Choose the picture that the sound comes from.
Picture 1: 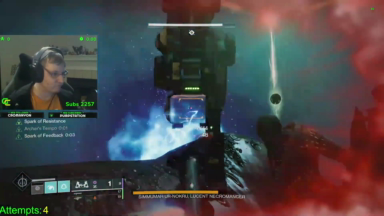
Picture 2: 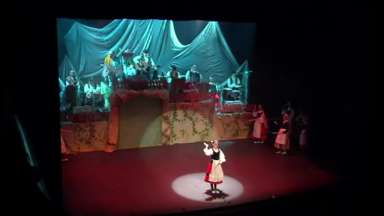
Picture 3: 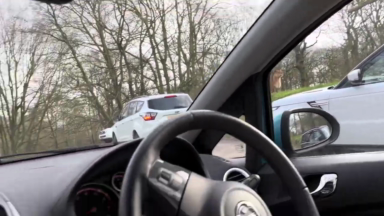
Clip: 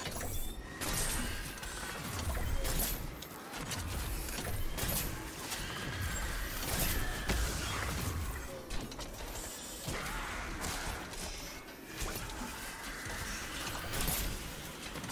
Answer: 1